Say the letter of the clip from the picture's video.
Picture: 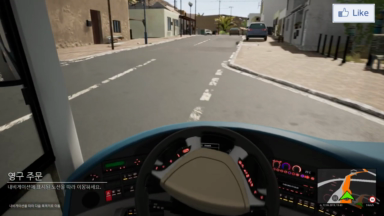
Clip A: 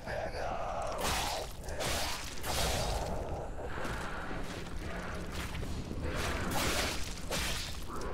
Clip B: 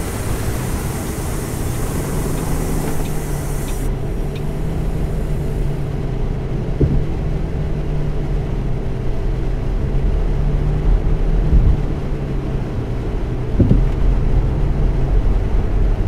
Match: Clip B